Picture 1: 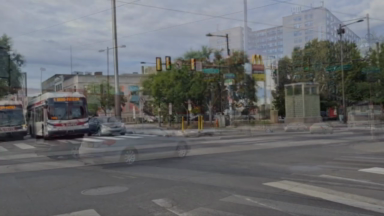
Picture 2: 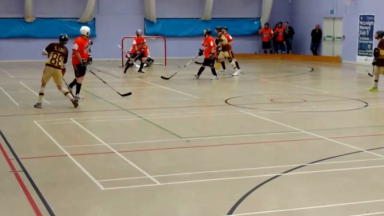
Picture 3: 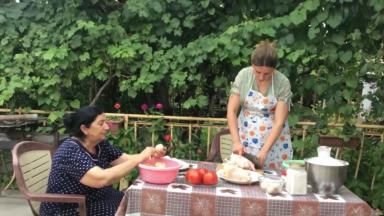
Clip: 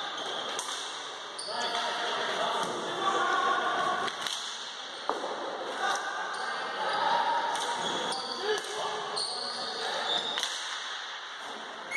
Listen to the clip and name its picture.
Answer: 2